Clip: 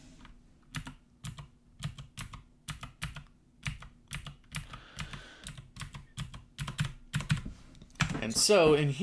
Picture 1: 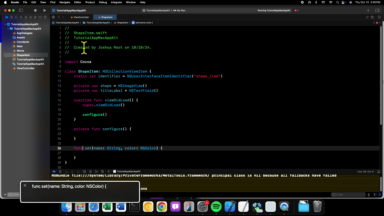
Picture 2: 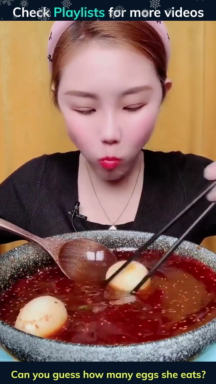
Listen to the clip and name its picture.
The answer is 1